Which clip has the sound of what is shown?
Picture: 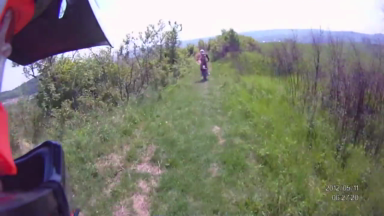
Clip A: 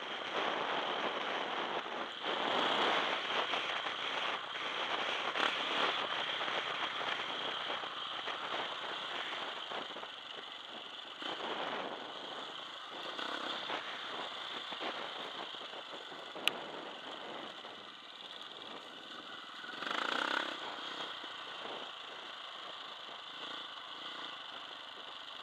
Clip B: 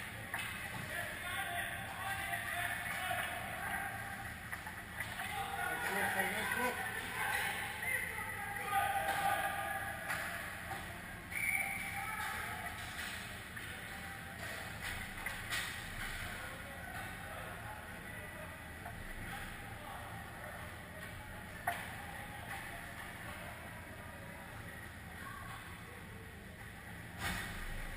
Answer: A